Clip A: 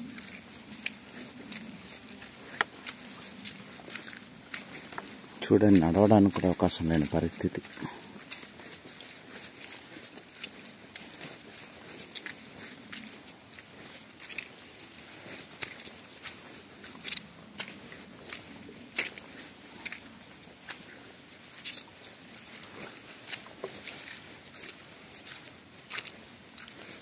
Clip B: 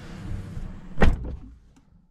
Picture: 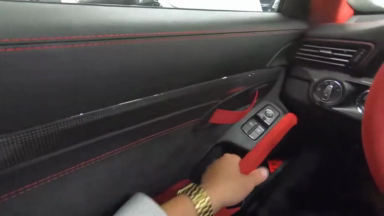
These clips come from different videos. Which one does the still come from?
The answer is B